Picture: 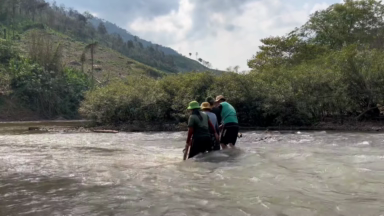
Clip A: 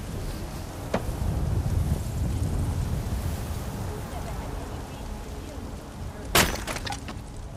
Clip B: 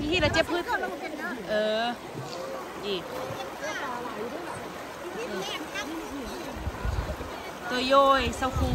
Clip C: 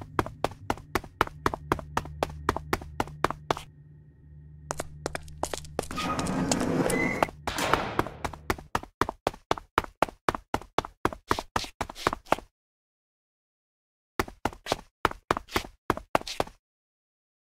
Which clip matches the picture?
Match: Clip B